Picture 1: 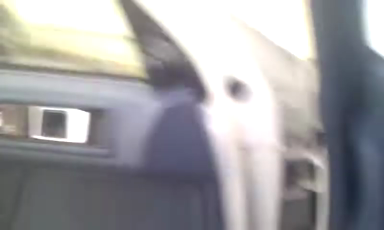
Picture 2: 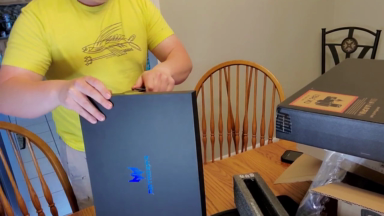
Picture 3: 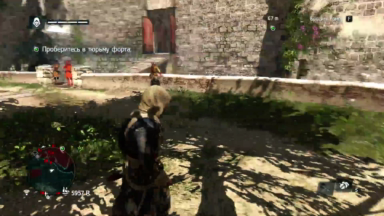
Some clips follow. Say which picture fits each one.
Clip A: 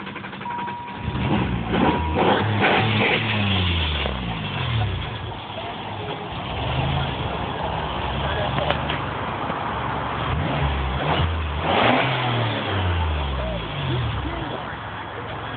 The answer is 1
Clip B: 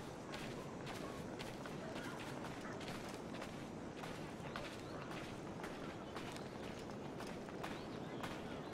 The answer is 3